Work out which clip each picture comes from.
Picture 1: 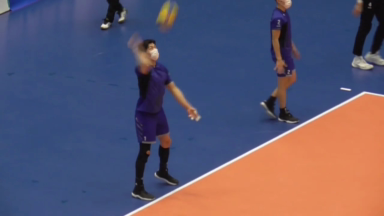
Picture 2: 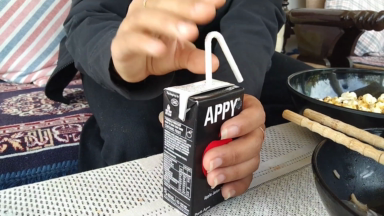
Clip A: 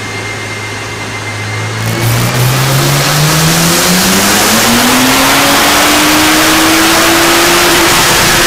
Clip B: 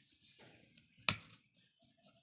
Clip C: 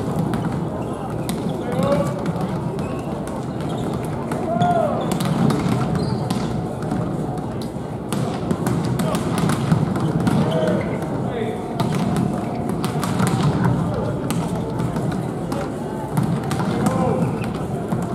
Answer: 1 C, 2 B